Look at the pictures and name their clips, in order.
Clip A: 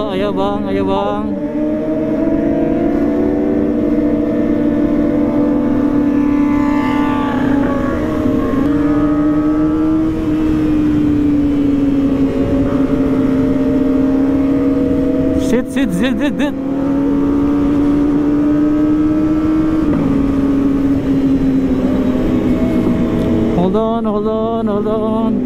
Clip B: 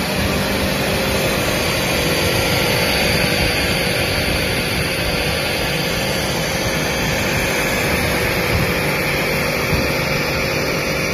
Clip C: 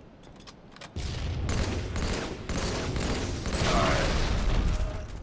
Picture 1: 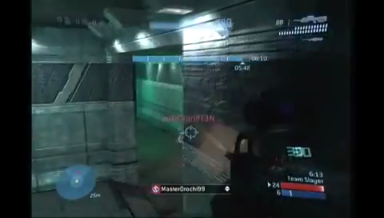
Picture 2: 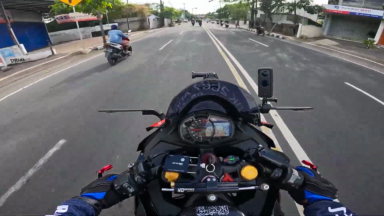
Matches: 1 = C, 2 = A